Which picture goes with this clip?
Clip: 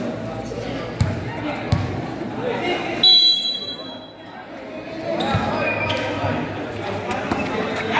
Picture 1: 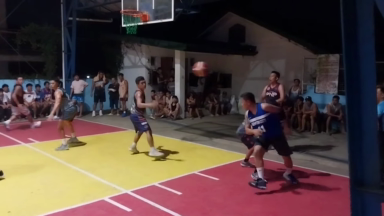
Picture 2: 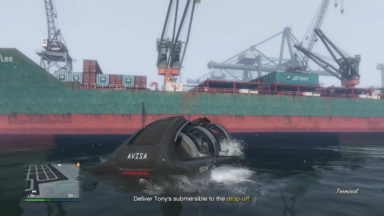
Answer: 1